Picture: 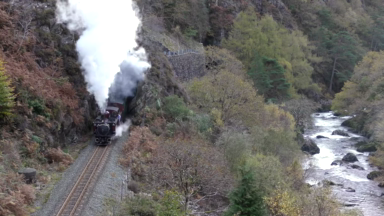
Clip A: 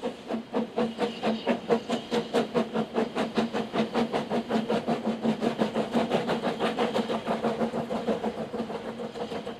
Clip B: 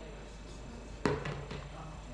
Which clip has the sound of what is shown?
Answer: A